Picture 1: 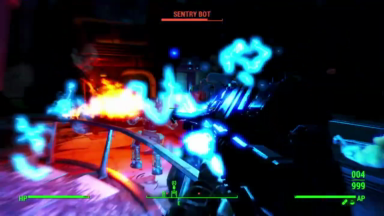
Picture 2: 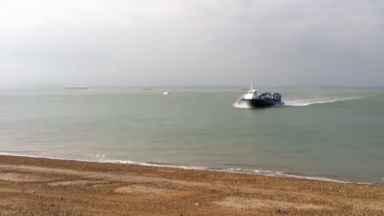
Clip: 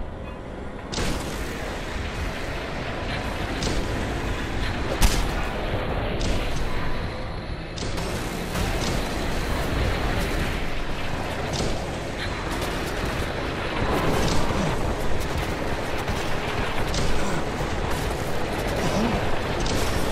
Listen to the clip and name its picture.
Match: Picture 1